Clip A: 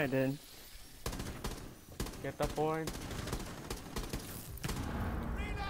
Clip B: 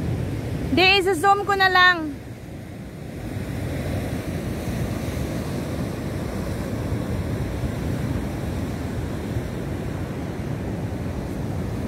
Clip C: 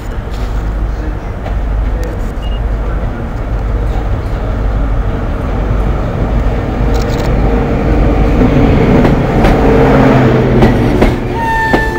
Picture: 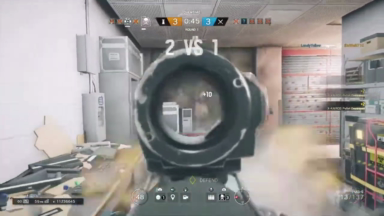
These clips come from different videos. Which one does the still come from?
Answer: A